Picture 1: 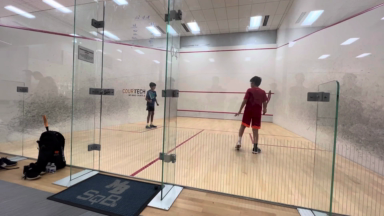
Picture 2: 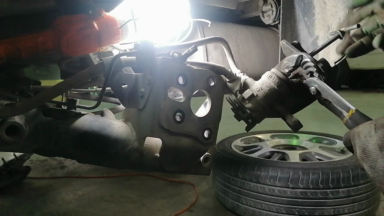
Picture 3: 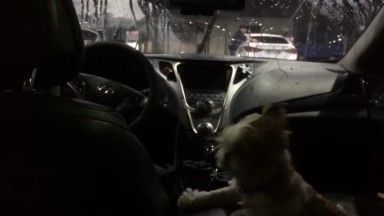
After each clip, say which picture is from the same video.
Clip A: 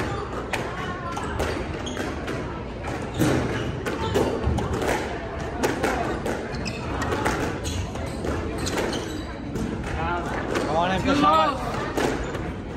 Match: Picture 1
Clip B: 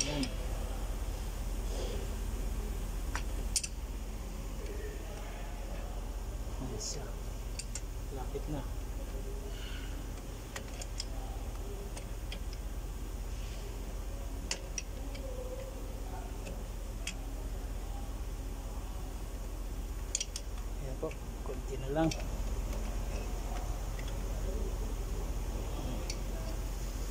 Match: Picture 2